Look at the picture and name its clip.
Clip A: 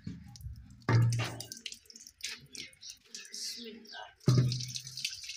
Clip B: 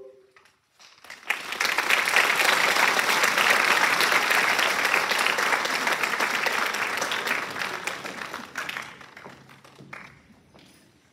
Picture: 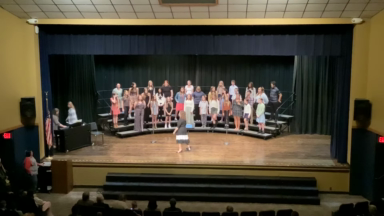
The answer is B